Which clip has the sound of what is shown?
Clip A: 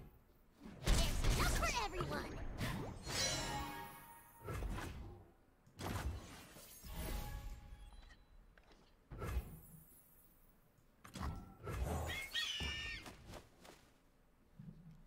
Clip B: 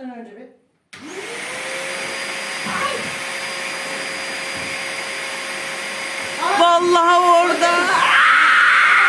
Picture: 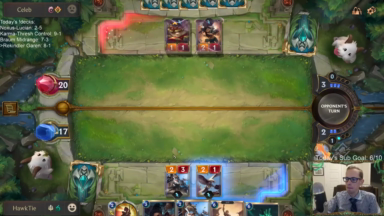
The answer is A